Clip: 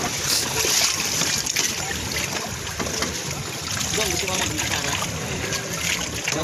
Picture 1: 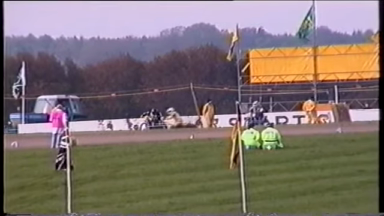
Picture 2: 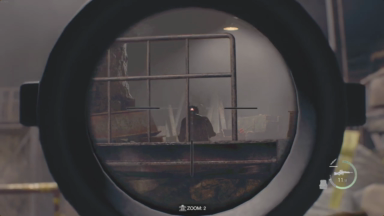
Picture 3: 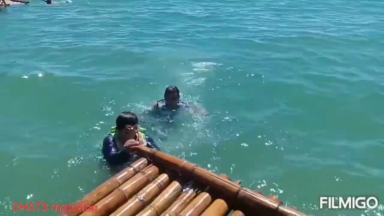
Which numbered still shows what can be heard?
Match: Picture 3